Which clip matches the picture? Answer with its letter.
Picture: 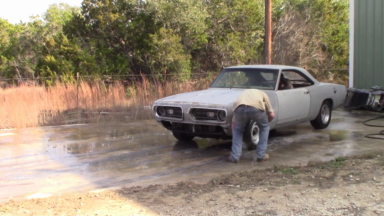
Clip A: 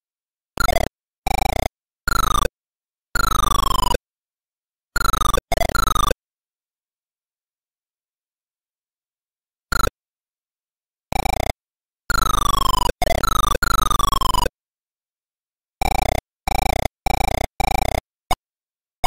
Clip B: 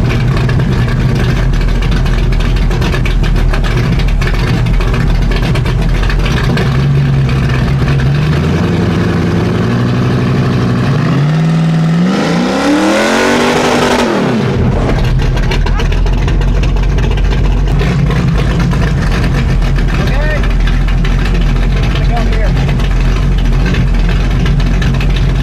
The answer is B